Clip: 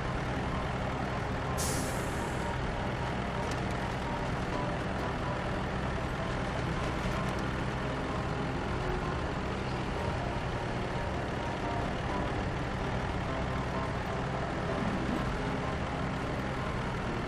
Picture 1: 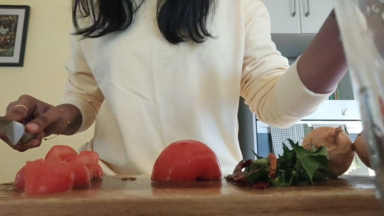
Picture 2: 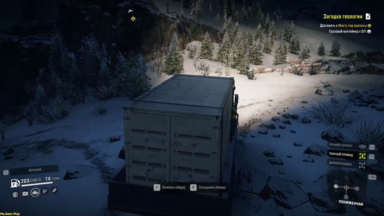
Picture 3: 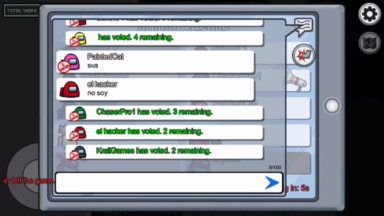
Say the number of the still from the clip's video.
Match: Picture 2